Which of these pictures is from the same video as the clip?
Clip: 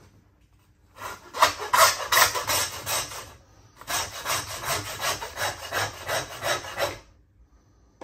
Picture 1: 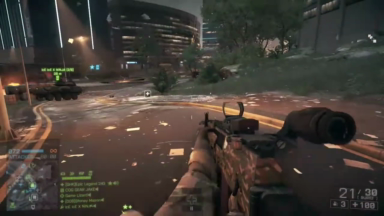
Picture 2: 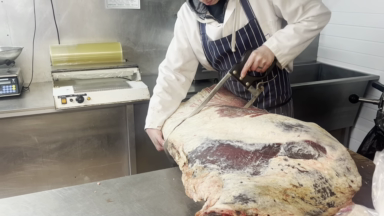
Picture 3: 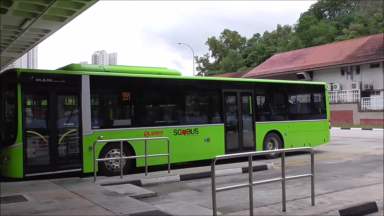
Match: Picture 2